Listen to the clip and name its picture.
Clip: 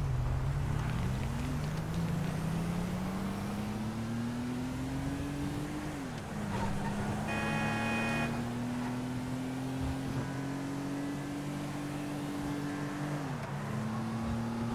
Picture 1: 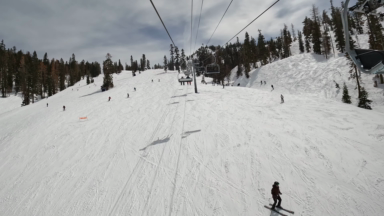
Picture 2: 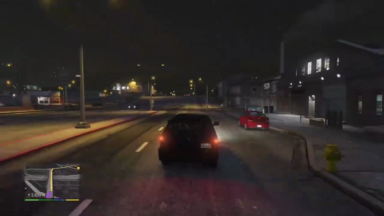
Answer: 2